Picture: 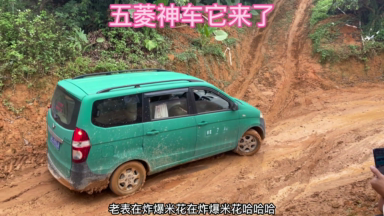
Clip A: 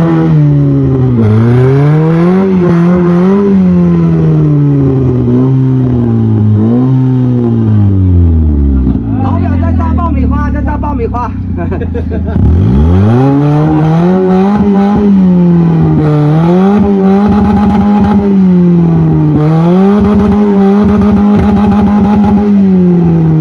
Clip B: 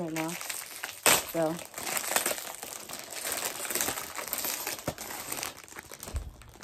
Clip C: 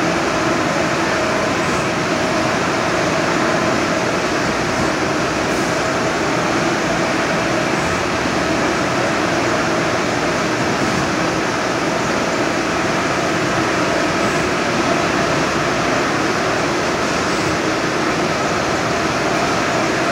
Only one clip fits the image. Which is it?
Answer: A